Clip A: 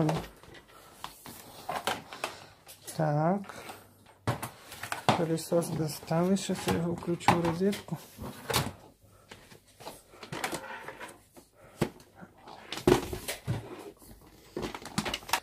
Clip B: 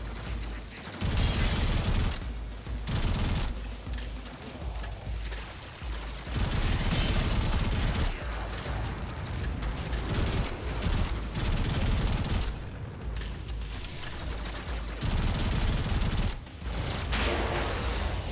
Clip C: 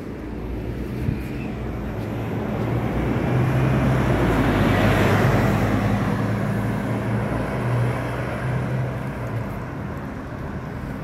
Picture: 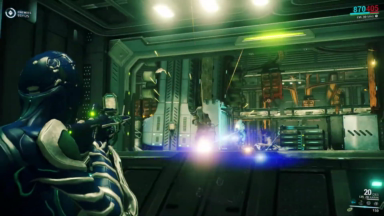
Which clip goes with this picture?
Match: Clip B